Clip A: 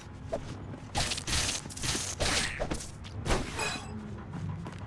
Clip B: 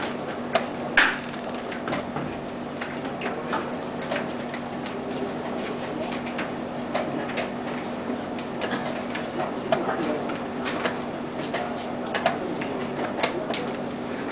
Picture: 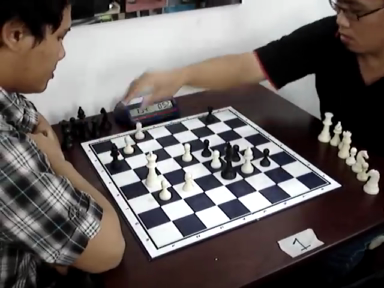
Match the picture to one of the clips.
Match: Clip B